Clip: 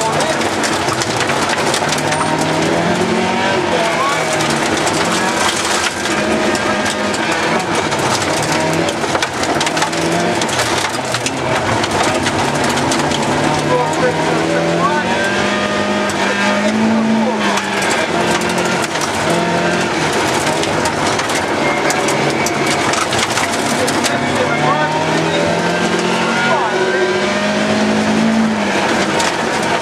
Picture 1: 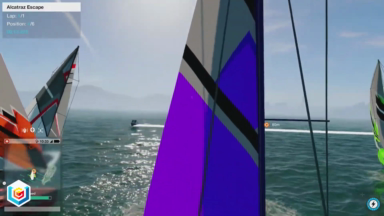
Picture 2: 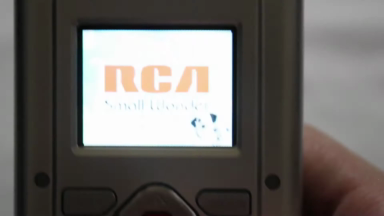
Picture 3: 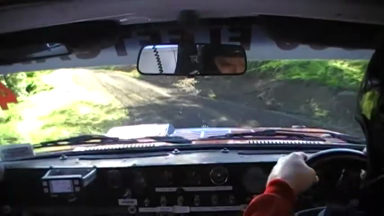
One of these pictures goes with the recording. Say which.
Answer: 3